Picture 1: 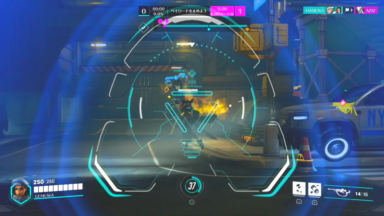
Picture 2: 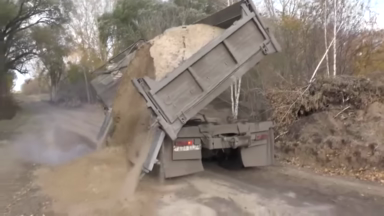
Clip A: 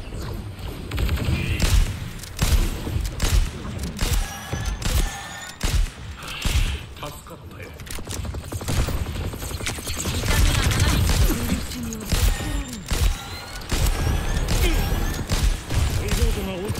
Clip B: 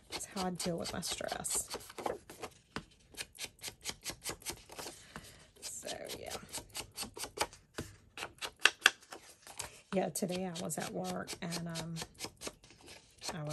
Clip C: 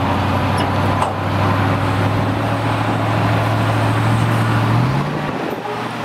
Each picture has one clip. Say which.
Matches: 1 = A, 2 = C